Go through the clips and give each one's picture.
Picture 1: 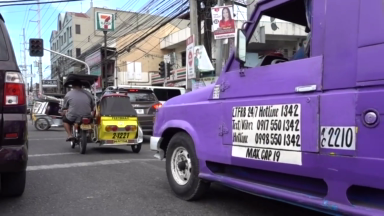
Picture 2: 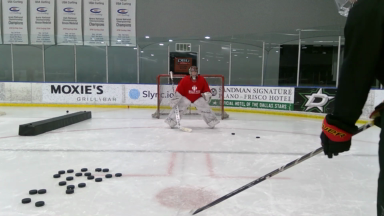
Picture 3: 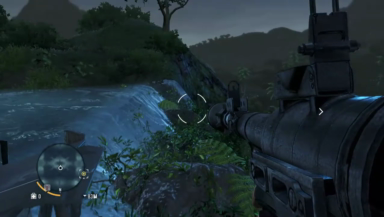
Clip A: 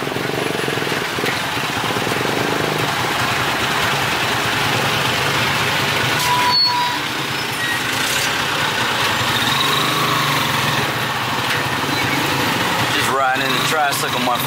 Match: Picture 1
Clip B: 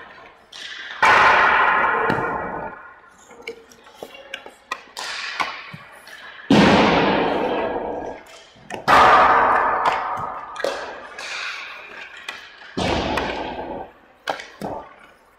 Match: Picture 2